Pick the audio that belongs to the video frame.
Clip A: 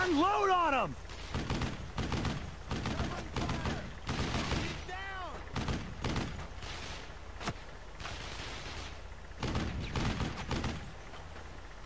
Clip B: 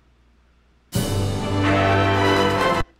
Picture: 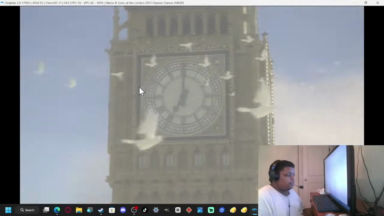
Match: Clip B